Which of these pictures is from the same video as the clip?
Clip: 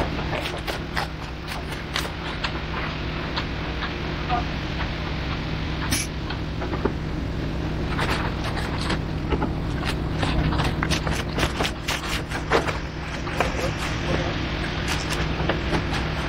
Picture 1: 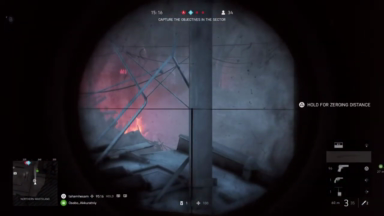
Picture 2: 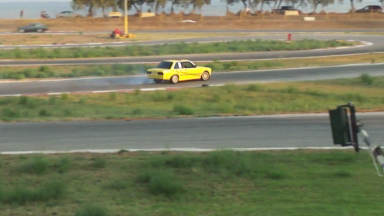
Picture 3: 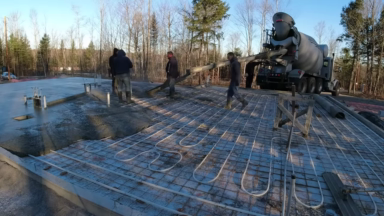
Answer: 3